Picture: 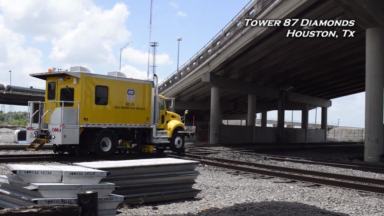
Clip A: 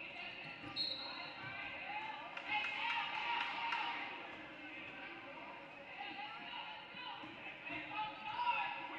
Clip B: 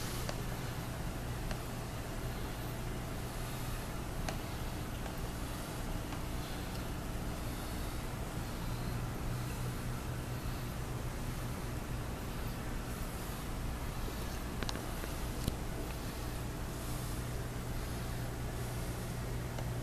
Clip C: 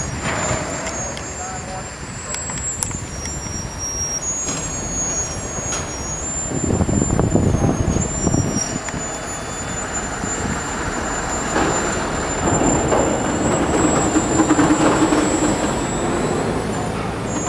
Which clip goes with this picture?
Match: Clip C